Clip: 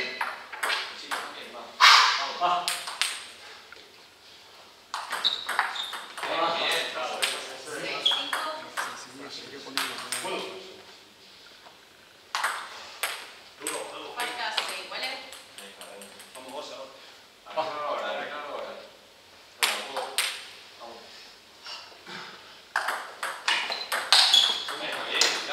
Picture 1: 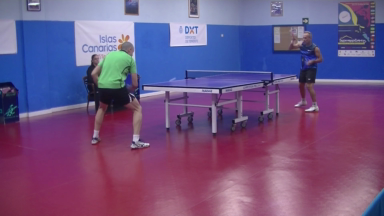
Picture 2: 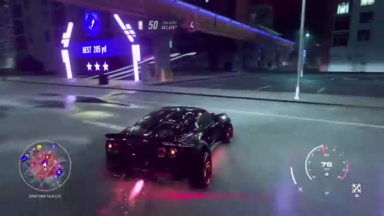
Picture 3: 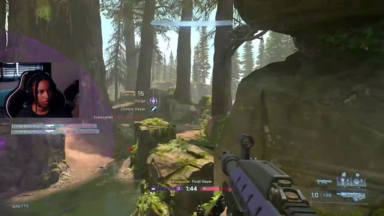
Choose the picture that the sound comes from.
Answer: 1